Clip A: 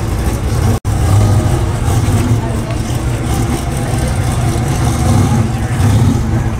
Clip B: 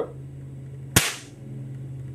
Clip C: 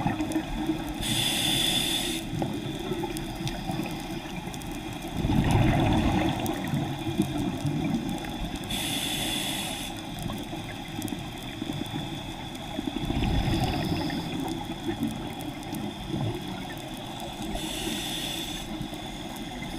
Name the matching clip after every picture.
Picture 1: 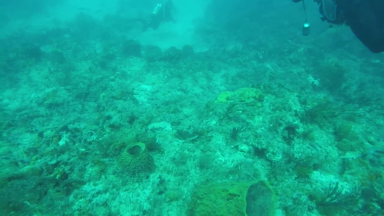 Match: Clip C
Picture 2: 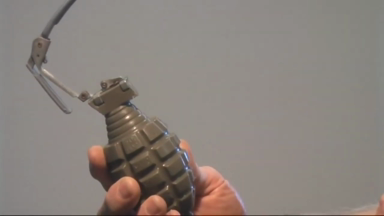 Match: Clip B